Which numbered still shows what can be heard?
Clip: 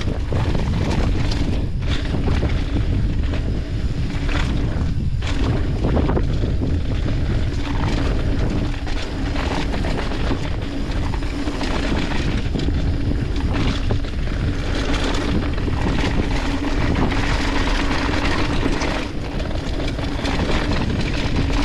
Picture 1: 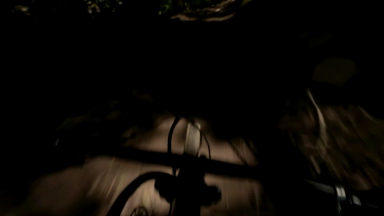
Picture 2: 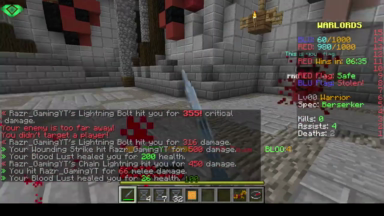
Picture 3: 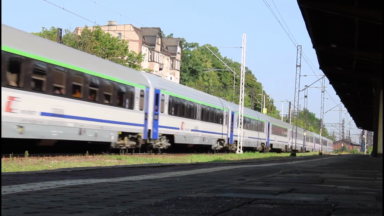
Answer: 1